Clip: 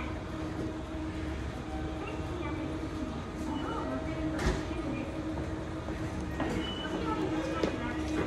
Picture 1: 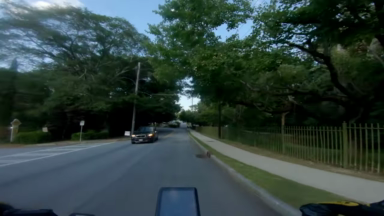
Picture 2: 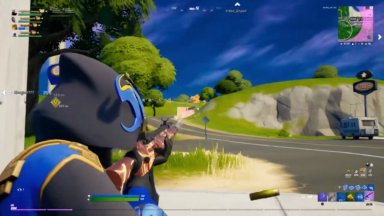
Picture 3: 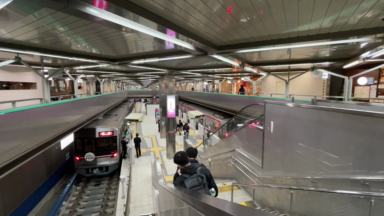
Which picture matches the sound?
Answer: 3